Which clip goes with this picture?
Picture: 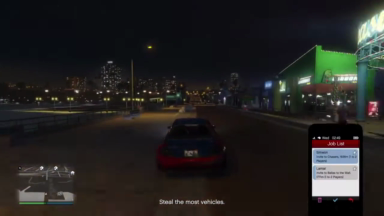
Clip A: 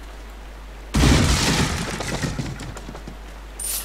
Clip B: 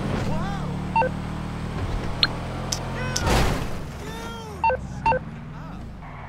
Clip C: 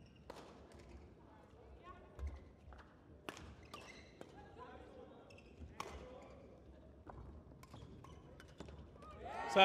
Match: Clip B